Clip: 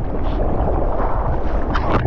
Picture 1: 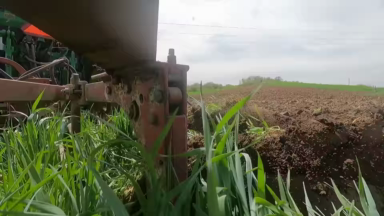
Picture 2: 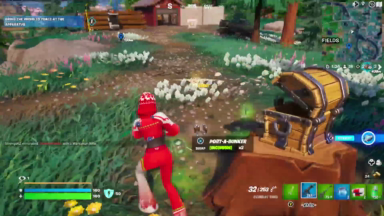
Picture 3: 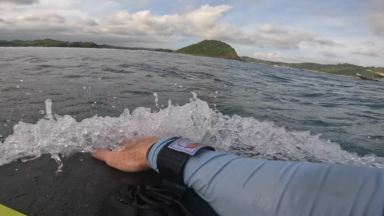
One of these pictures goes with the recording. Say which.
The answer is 3